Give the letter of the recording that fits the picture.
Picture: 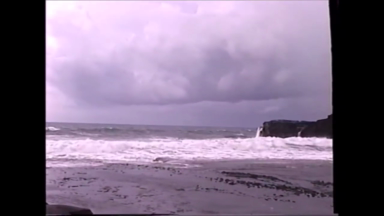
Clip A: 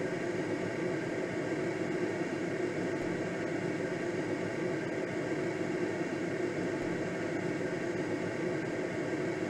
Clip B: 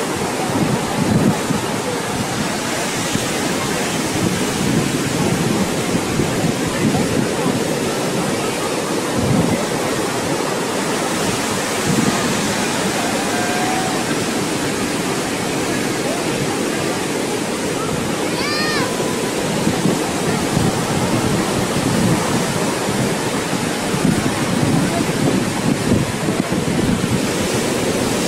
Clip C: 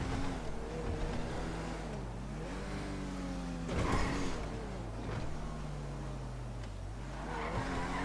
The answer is B